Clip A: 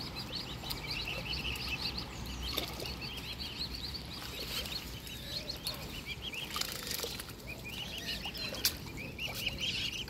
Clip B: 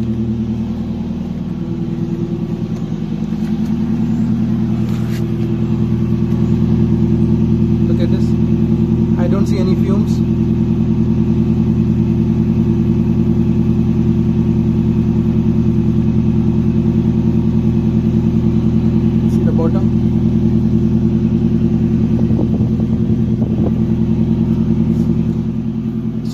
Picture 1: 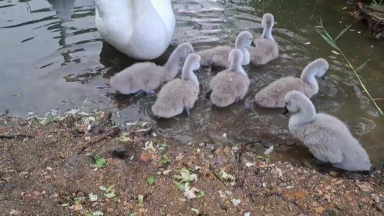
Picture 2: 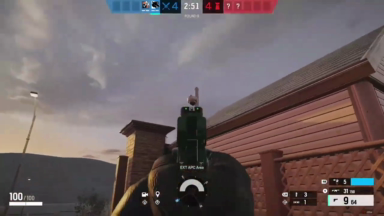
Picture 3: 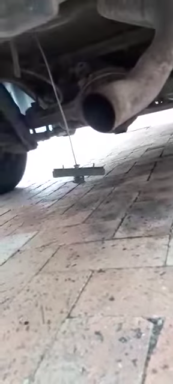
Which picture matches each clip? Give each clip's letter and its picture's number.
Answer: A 1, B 3